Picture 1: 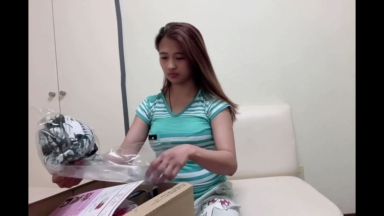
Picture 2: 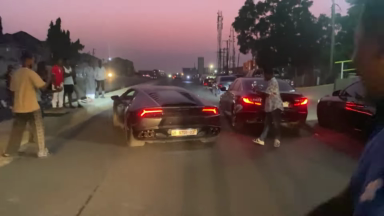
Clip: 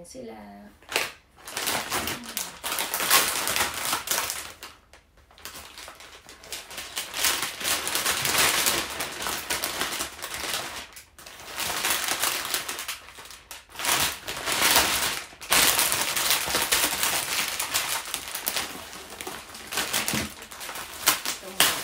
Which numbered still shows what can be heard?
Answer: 1